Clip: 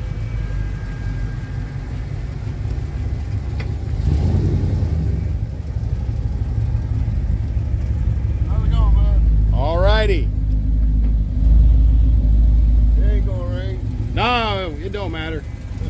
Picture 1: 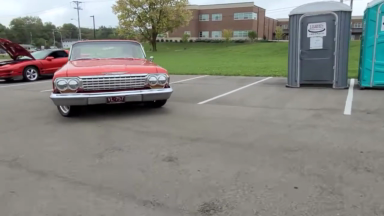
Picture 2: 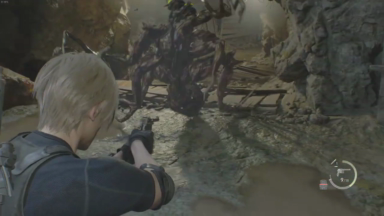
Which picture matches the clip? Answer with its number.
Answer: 1